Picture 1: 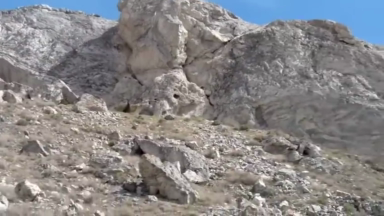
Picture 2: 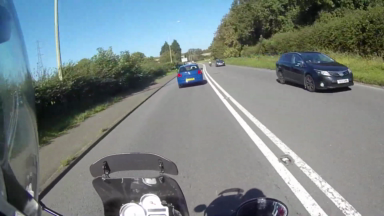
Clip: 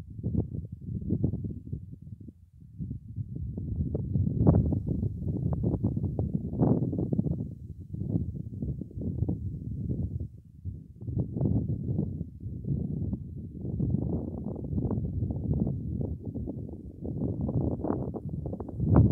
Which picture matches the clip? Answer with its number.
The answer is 1